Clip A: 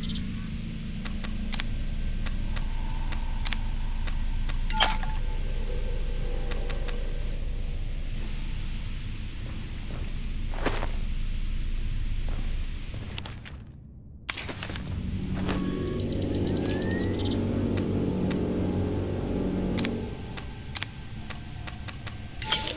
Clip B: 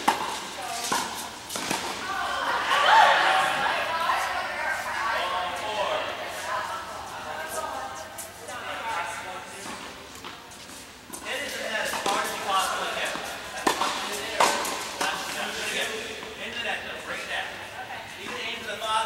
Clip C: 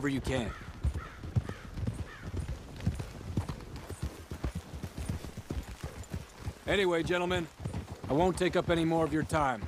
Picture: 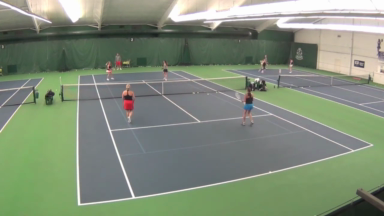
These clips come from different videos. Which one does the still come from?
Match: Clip B